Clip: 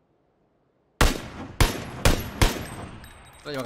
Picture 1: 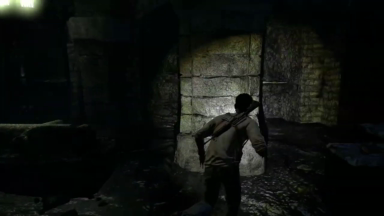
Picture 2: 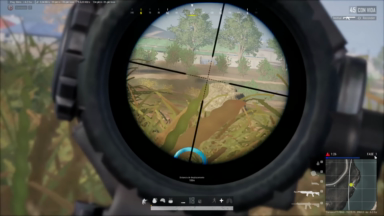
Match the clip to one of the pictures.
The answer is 2